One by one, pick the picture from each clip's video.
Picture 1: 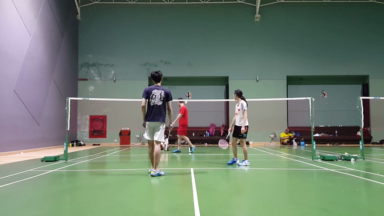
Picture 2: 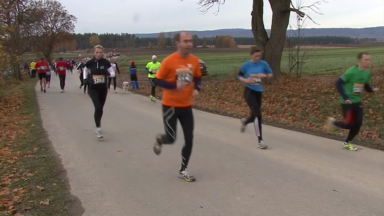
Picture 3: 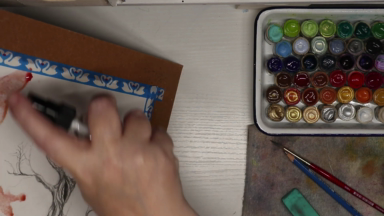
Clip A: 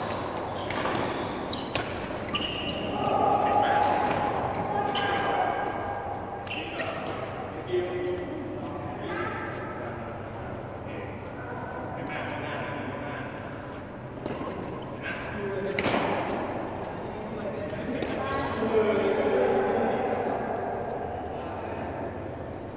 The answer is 1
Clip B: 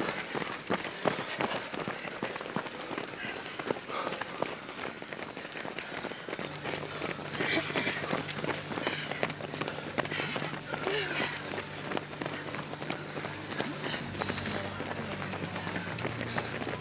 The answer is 2